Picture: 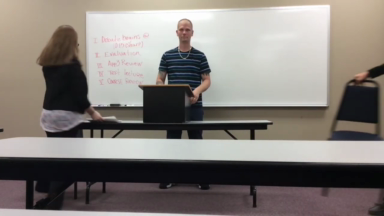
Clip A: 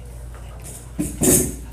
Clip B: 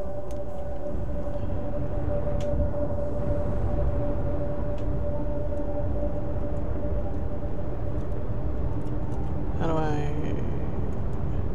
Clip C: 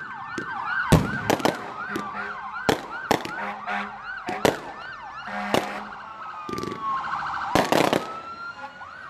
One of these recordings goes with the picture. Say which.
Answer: A